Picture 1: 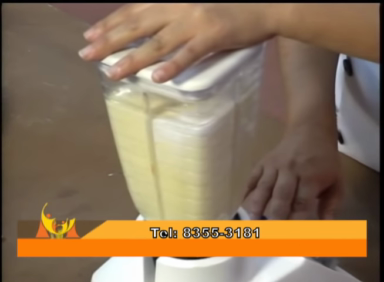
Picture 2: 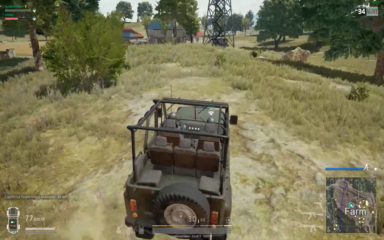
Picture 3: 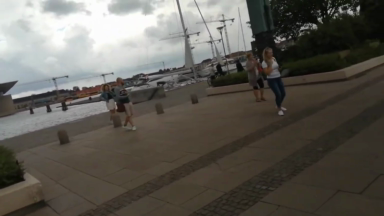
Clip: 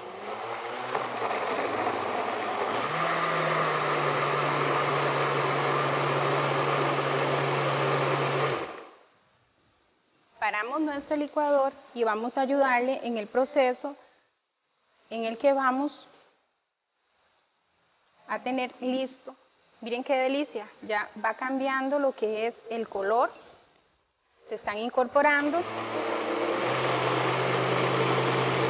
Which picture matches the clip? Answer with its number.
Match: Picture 1